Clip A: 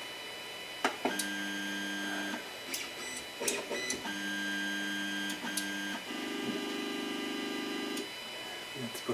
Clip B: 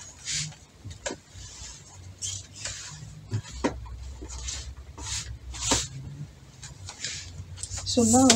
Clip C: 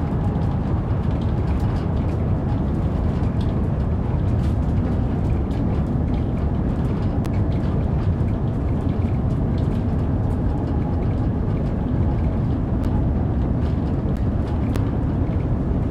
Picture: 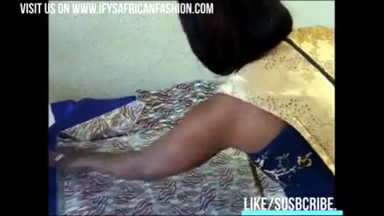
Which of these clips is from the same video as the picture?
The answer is B